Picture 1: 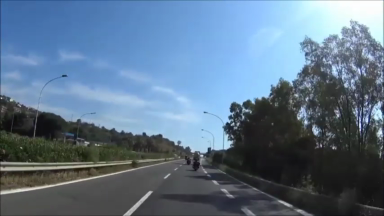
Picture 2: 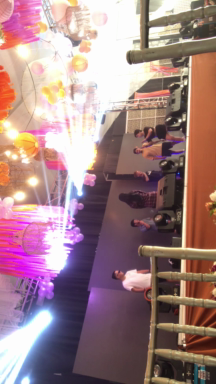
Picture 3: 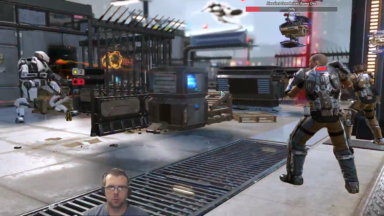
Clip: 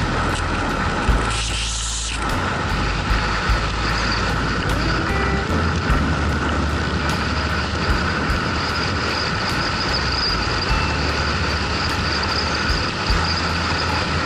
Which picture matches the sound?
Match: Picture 1